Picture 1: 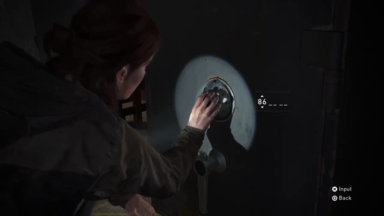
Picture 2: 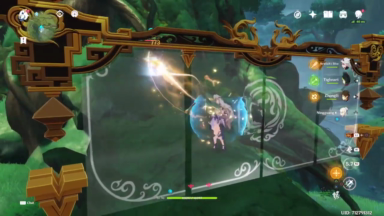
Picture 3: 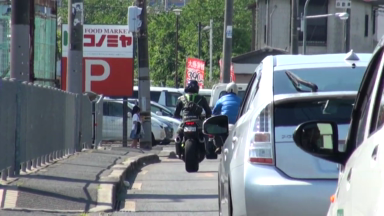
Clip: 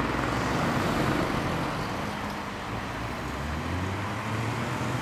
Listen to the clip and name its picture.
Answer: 3